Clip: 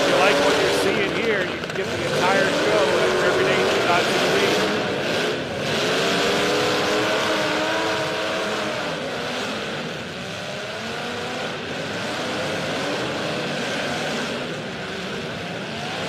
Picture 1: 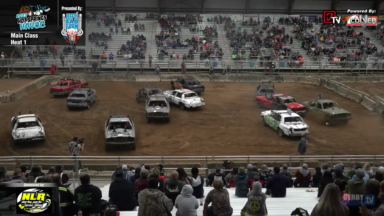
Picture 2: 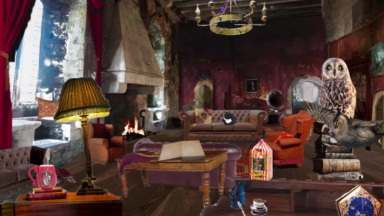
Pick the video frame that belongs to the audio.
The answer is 1